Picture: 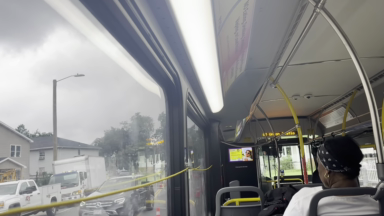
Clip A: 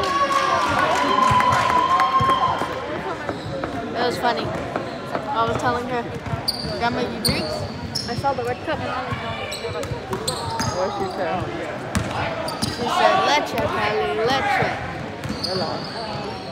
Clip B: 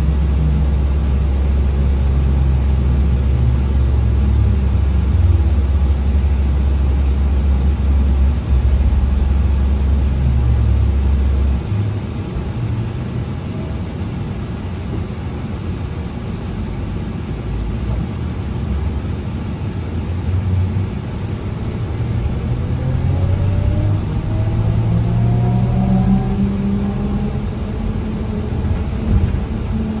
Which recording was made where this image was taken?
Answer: B